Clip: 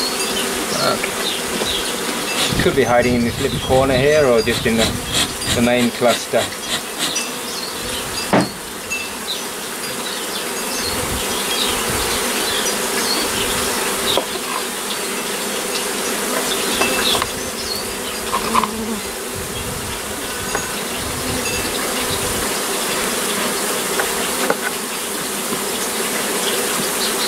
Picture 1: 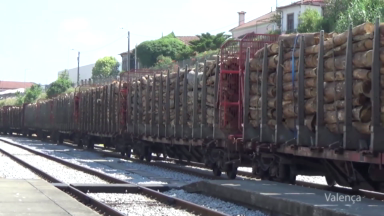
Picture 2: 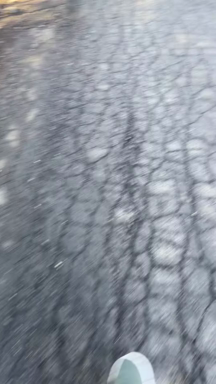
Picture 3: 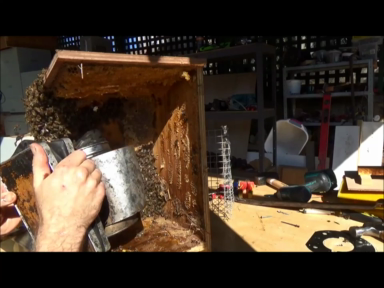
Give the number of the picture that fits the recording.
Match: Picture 3